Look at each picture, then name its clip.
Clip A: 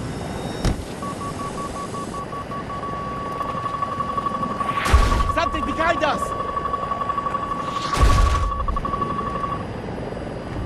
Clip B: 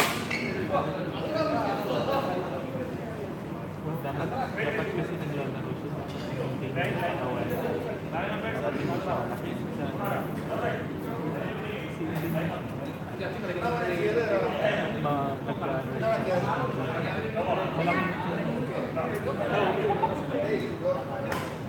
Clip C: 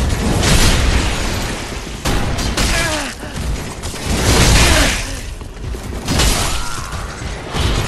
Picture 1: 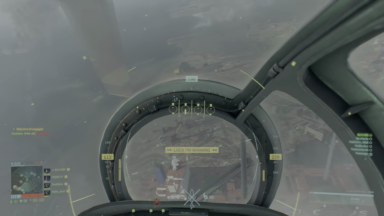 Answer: A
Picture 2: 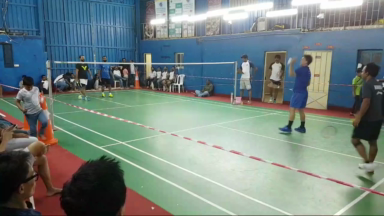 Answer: B